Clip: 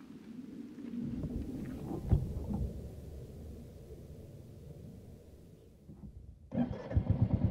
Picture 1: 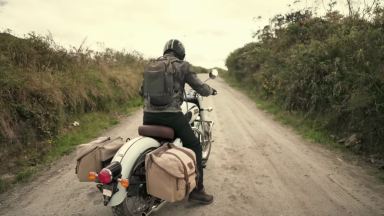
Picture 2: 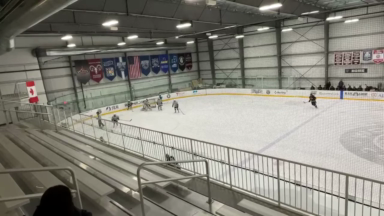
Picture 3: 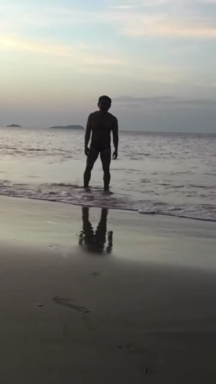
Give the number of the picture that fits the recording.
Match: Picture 1